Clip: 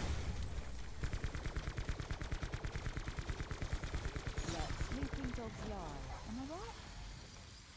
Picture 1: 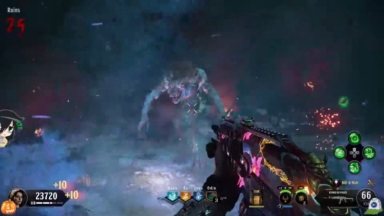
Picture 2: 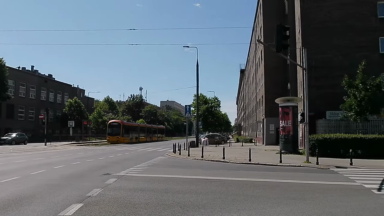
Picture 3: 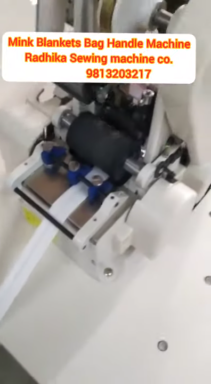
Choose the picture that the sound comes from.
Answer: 1